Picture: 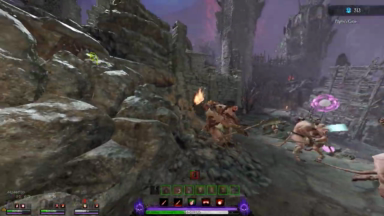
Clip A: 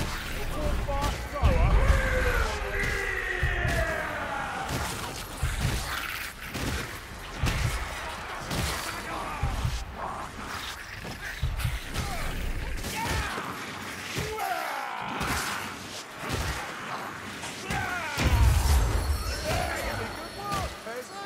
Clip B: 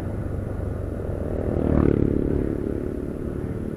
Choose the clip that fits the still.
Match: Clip A